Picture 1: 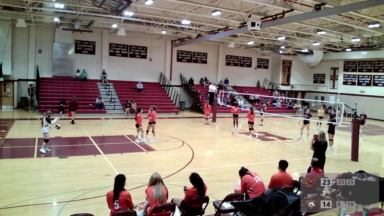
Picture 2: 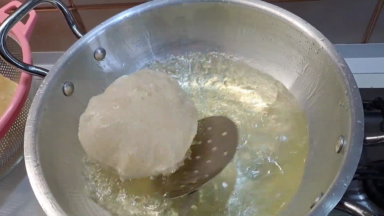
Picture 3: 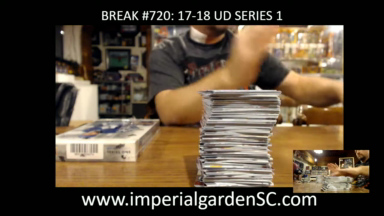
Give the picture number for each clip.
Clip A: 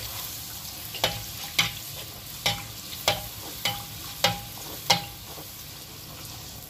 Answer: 2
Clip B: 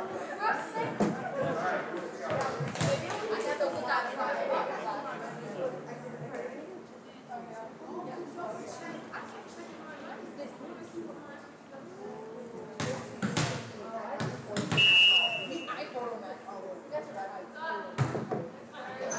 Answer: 1